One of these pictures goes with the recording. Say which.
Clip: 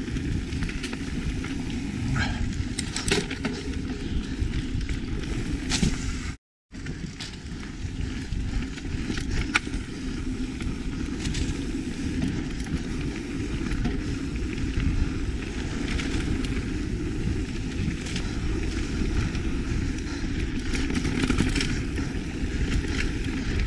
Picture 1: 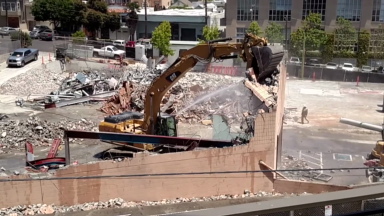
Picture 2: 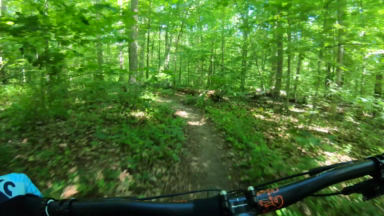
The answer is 2